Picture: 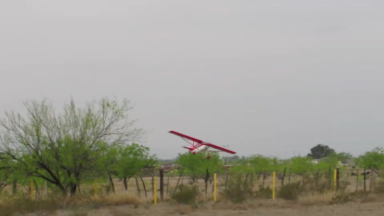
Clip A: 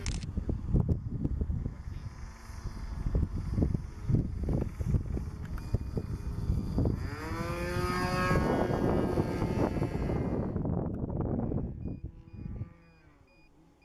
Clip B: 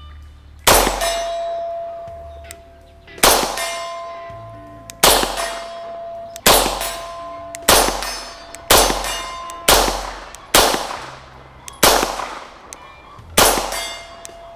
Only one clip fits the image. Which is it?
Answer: A